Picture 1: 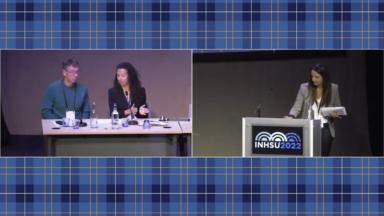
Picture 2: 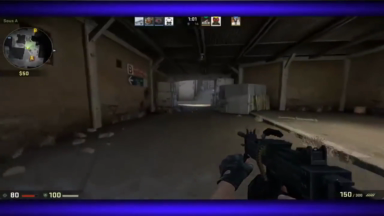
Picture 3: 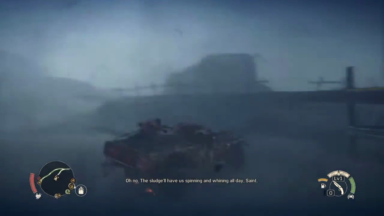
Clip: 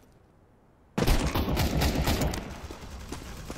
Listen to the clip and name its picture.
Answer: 2